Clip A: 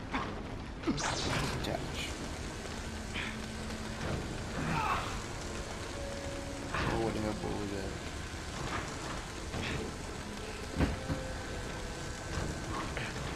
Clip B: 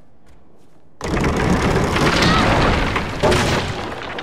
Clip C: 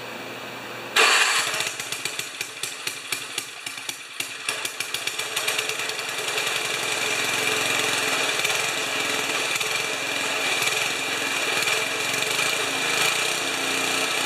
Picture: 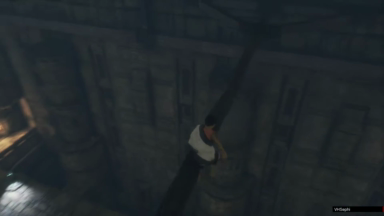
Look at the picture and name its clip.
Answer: B